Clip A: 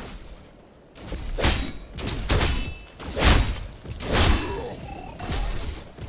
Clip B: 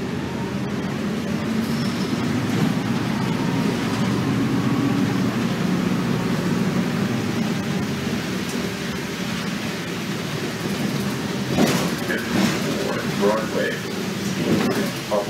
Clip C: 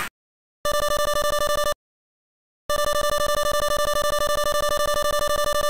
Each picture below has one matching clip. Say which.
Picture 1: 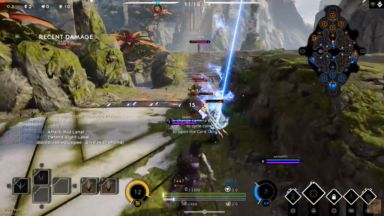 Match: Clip A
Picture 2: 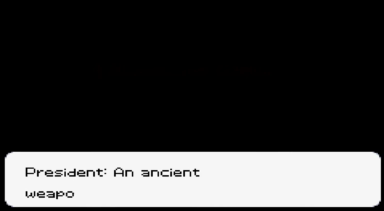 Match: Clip C